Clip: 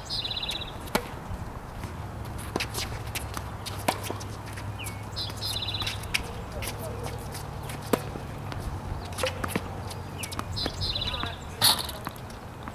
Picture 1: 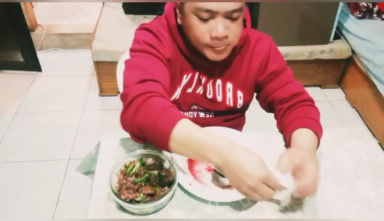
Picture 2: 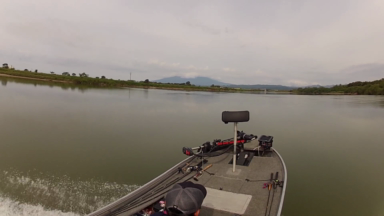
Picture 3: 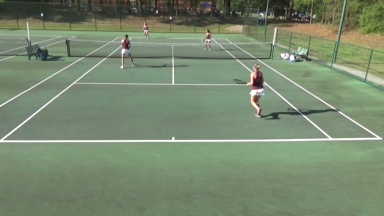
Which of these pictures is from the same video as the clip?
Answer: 3